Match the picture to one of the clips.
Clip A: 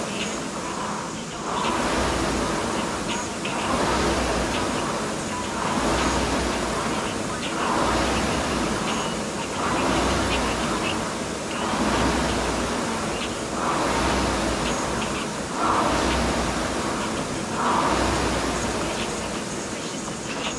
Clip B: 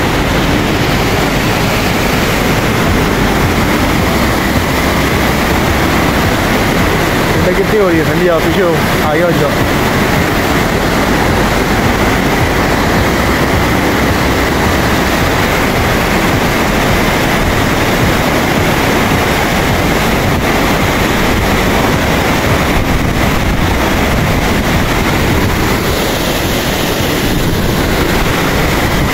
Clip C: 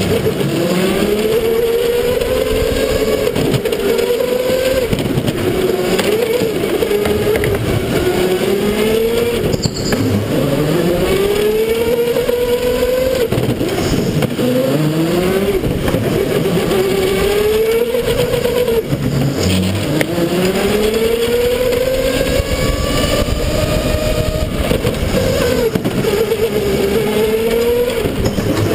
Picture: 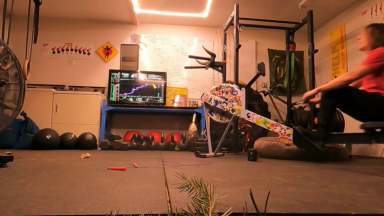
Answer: A